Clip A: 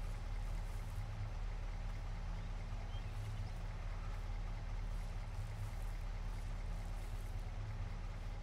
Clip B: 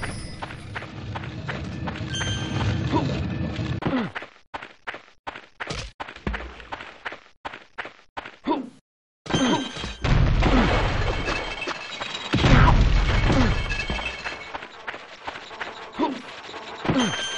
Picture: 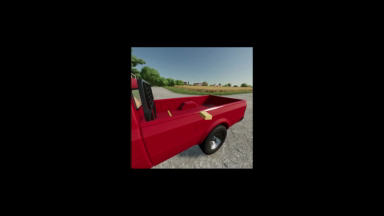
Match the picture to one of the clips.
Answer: A